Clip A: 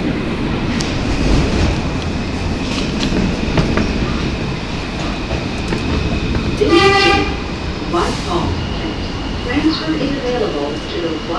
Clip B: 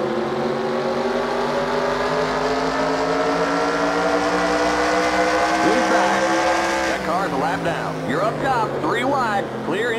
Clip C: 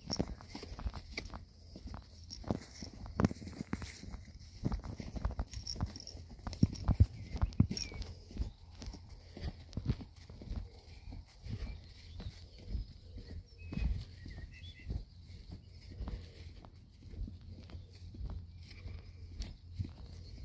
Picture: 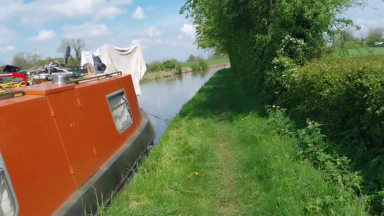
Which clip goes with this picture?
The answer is C